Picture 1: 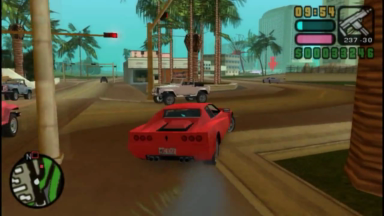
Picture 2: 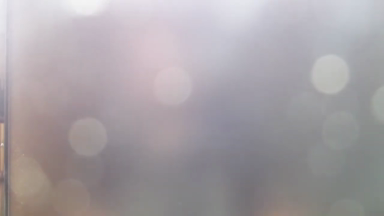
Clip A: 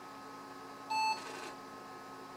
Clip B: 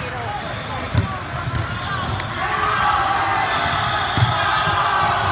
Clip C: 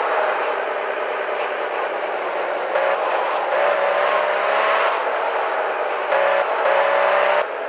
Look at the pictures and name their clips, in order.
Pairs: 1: C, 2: A